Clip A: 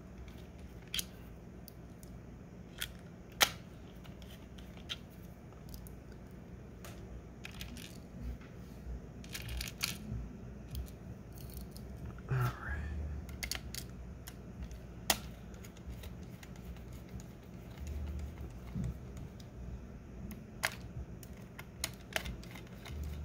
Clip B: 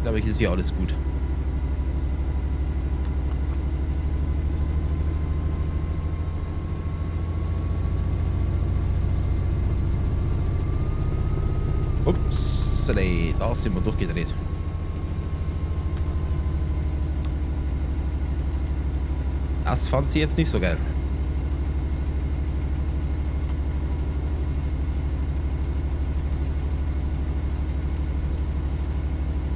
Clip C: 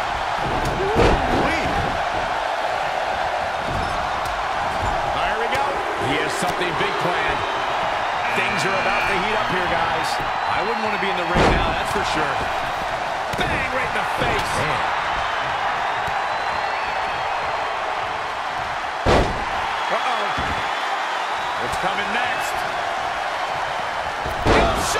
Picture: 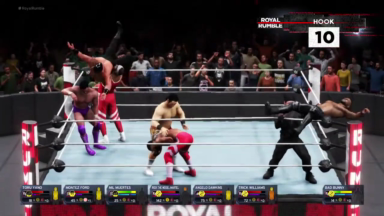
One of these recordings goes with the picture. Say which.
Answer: C